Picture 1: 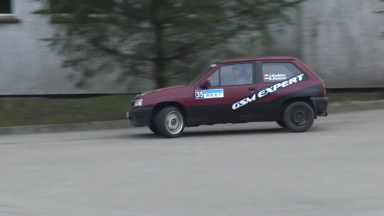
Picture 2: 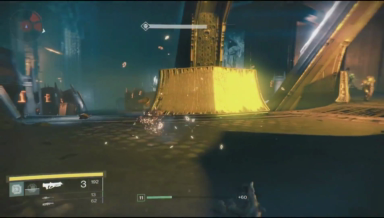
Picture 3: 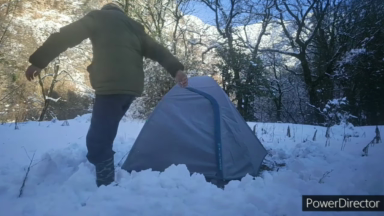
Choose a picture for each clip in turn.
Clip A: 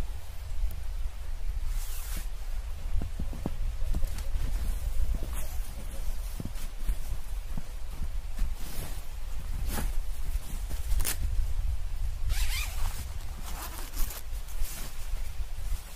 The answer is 3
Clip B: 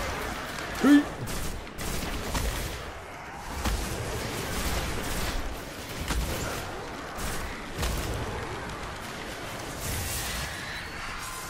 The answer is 2